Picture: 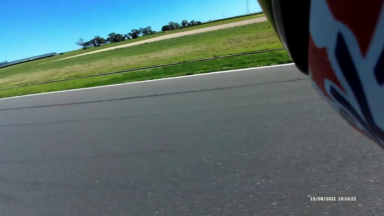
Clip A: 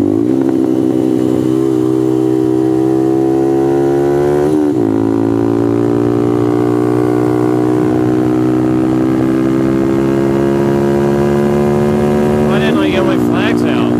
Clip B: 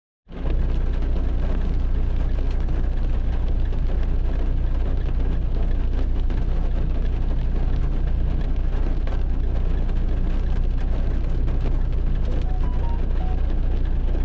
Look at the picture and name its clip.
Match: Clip A